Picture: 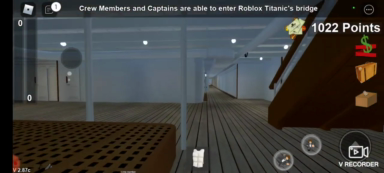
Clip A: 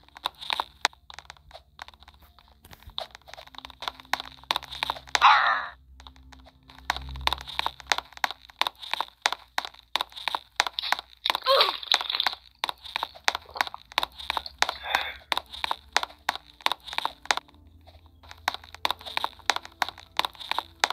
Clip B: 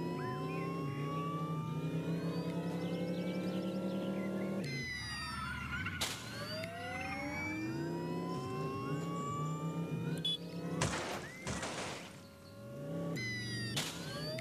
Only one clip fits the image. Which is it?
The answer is A